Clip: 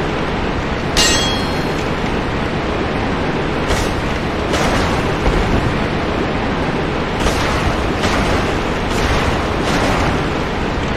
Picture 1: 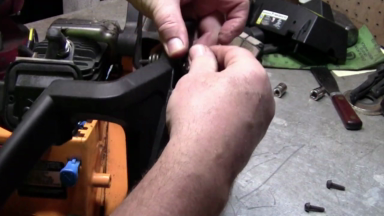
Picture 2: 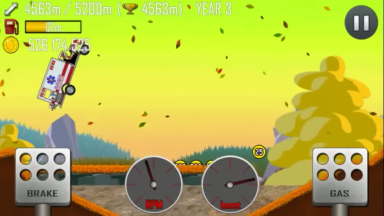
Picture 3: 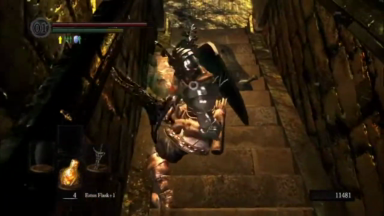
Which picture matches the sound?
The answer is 3